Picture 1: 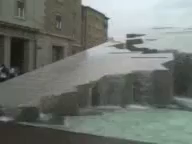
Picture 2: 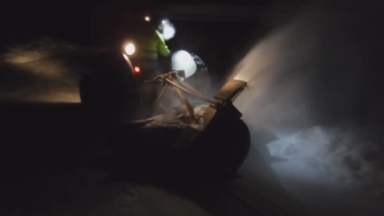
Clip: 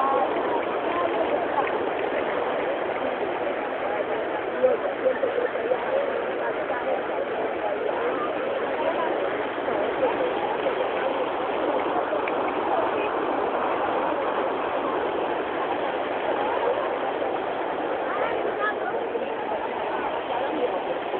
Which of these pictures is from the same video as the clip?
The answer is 1